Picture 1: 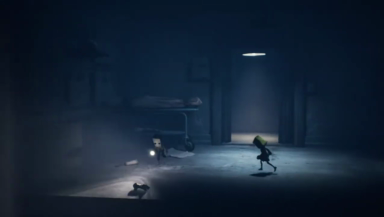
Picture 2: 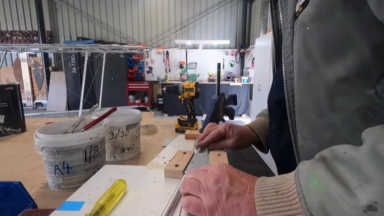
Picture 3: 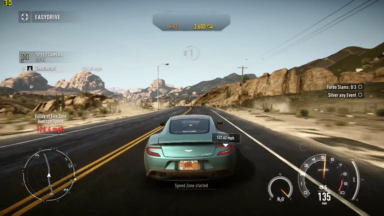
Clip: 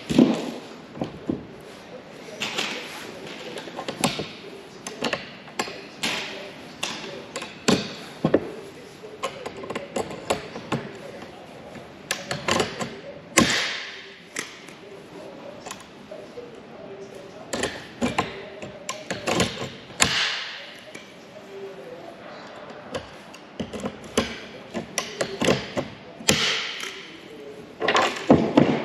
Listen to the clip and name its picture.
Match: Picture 2